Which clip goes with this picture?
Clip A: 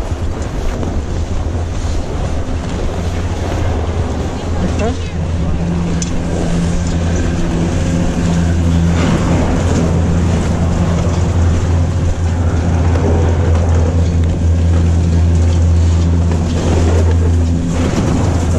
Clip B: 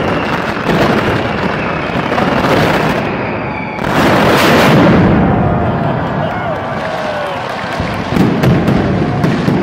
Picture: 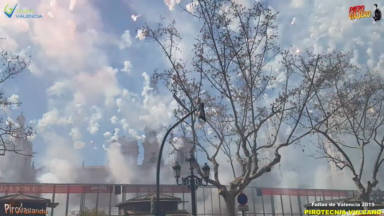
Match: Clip B